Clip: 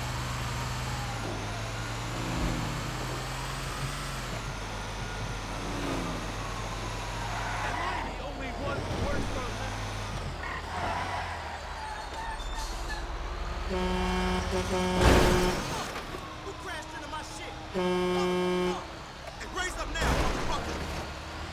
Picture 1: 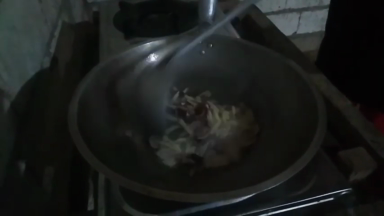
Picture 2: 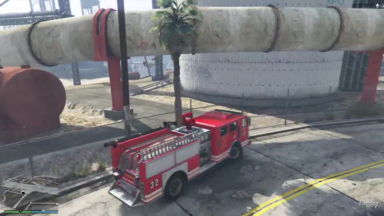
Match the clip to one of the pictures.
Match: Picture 2